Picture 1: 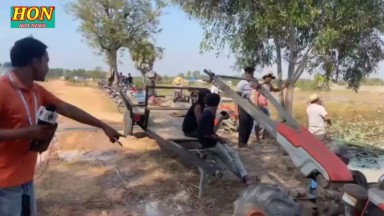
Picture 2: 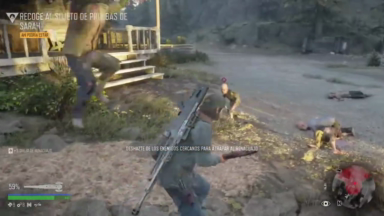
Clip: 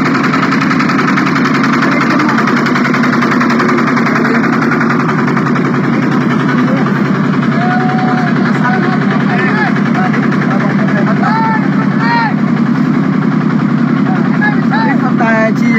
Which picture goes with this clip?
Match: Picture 1